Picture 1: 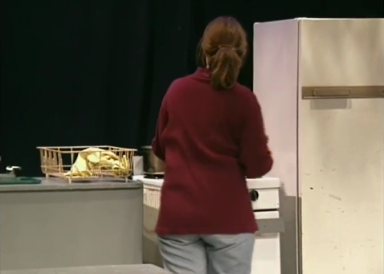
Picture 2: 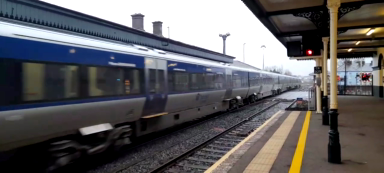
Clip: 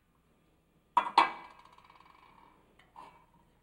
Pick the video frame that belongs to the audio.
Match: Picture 1